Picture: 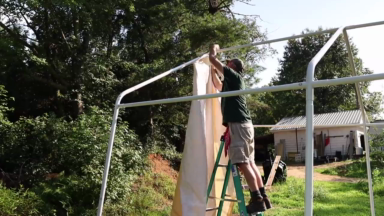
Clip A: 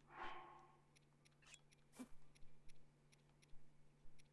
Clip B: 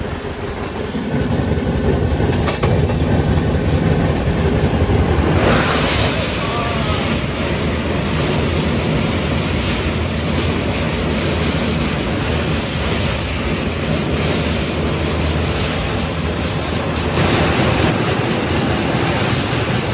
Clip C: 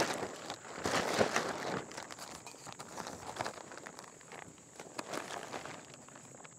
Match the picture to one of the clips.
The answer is C